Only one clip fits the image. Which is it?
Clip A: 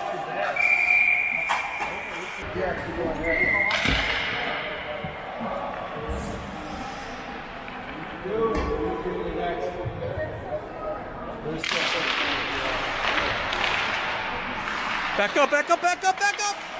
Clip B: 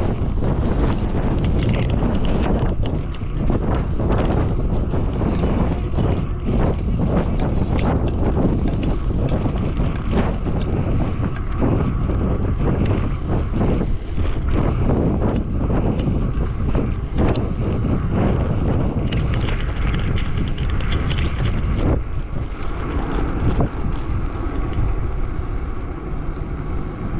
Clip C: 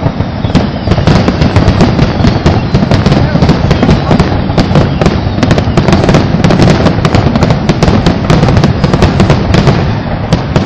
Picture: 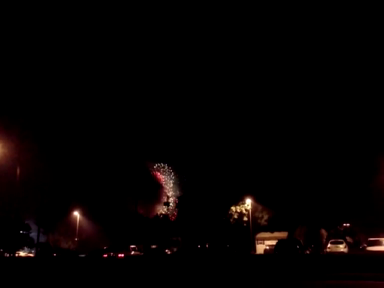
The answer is C